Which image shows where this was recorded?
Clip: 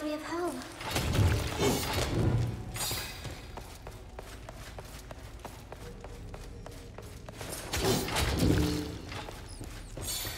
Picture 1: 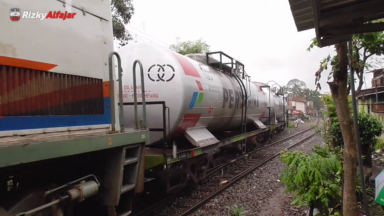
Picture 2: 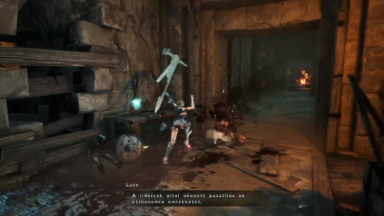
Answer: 2